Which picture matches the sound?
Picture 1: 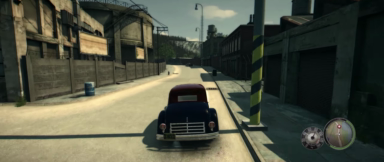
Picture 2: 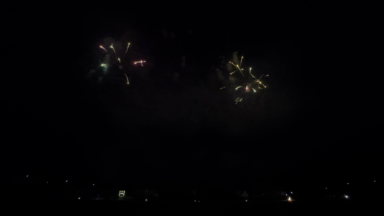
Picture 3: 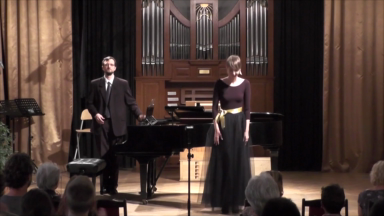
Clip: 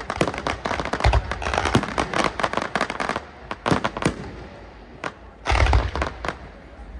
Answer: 2